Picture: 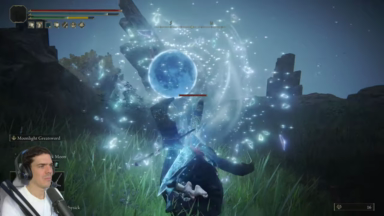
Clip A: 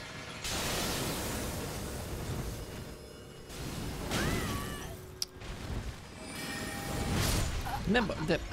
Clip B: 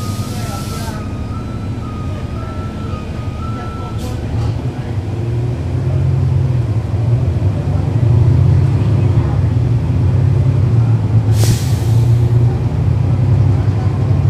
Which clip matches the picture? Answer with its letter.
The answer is A